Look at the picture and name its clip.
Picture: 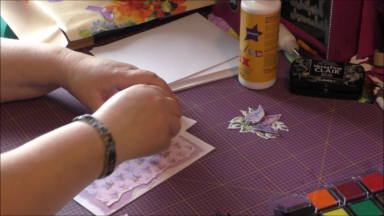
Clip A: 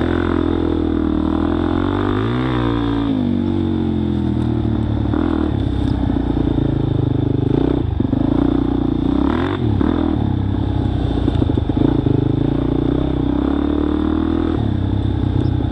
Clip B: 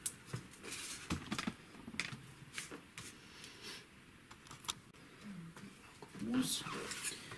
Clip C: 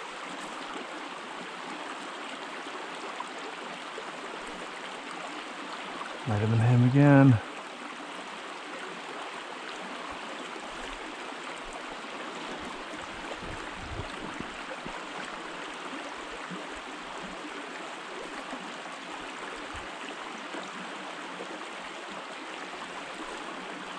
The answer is B